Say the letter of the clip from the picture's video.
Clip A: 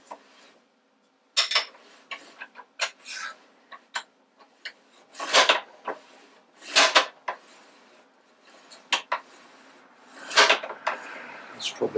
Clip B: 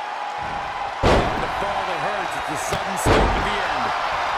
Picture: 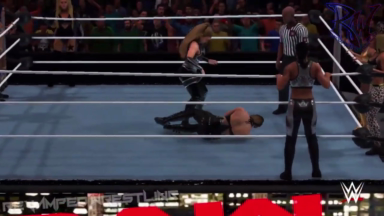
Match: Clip B